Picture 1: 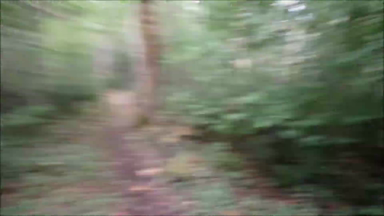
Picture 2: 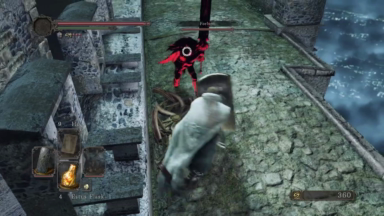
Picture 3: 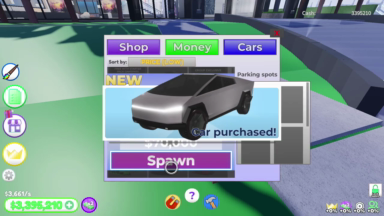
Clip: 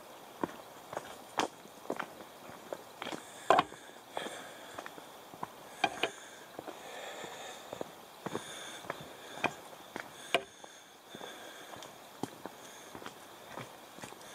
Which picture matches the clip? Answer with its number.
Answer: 1